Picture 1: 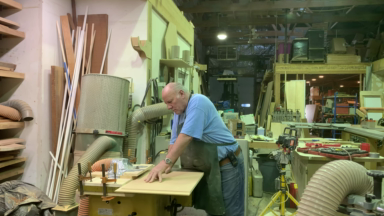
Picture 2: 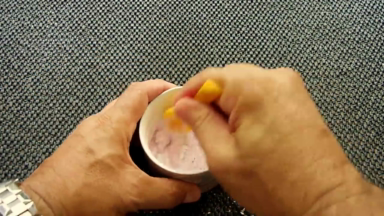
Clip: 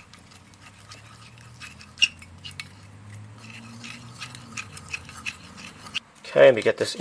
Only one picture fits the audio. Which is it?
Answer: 2